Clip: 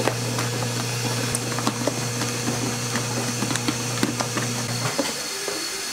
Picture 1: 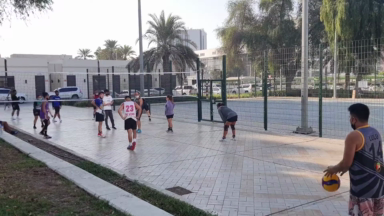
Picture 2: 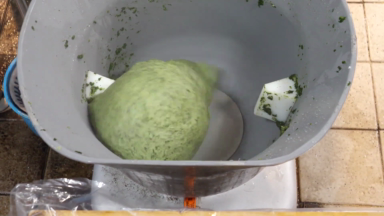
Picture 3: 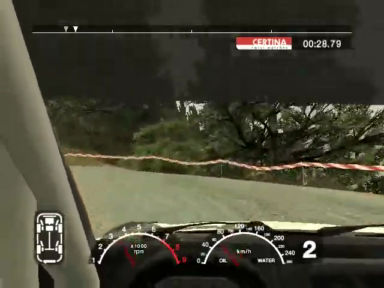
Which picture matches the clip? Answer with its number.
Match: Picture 2